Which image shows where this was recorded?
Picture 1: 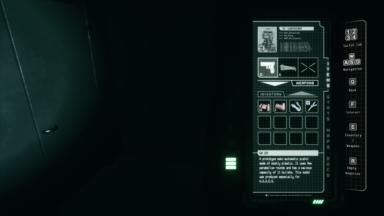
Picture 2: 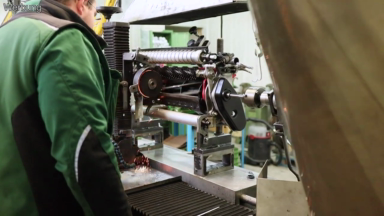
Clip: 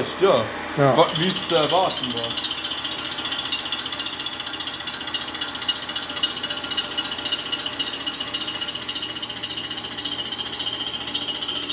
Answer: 2